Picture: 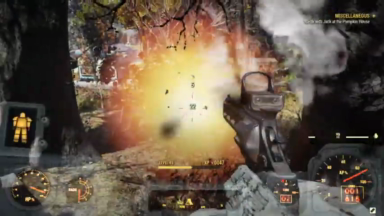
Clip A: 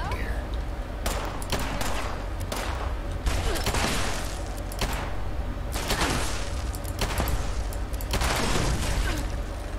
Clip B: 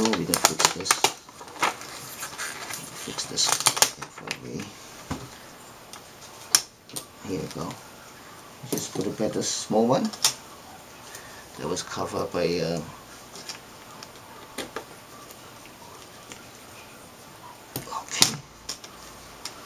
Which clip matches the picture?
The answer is A